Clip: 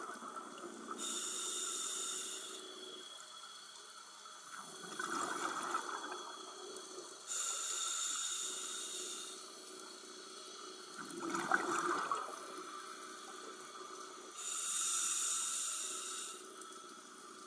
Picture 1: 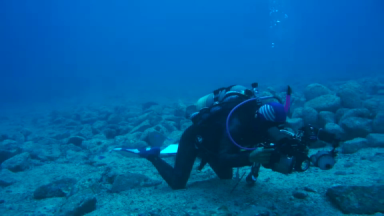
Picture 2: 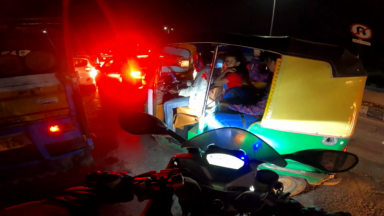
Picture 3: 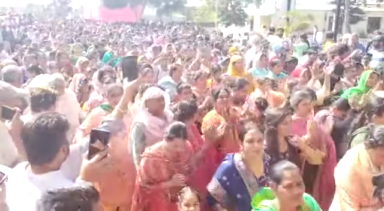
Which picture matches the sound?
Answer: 1